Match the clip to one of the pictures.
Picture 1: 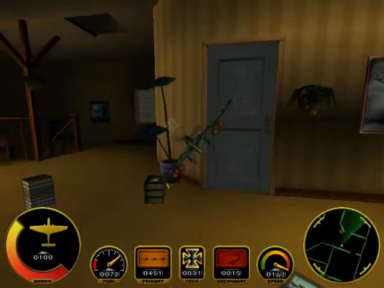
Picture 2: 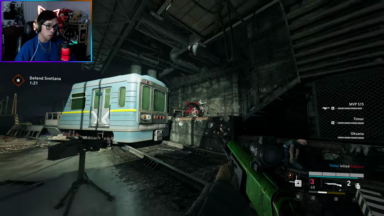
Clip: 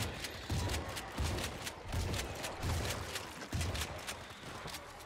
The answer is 2